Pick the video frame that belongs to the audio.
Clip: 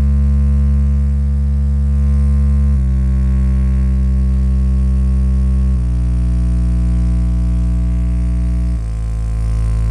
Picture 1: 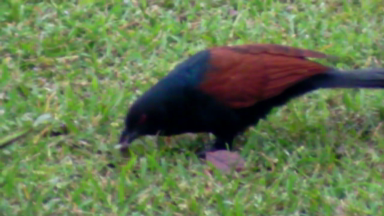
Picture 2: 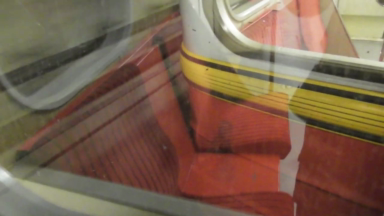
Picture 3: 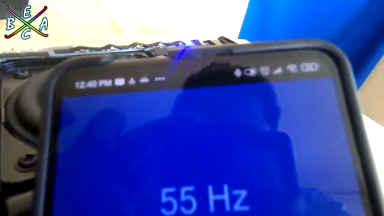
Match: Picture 3